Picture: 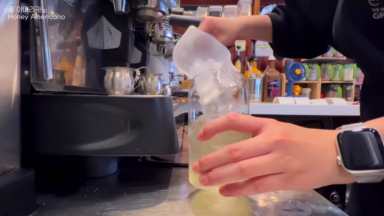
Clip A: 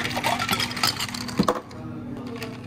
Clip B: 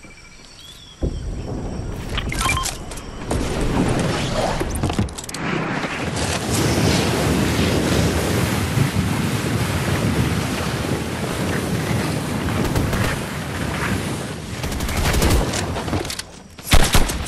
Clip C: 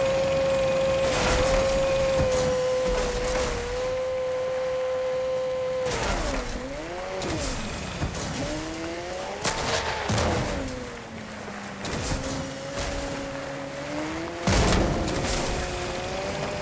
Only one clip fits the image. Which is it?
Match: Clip A